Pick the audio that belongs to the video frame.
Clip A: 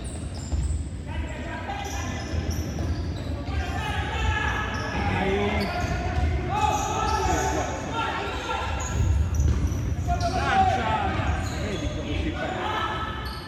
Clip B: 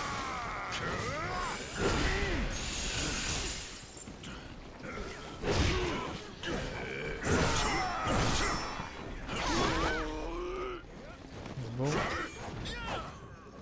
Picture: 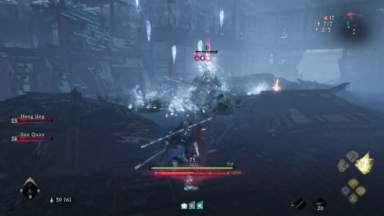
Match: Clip B